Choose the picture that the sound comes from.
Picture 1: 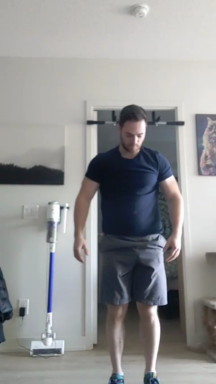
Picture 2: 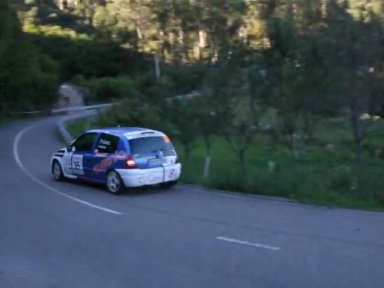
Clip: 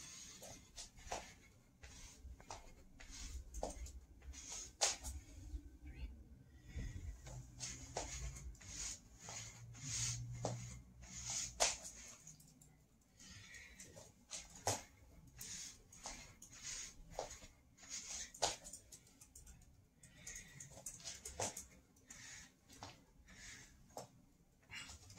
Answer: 1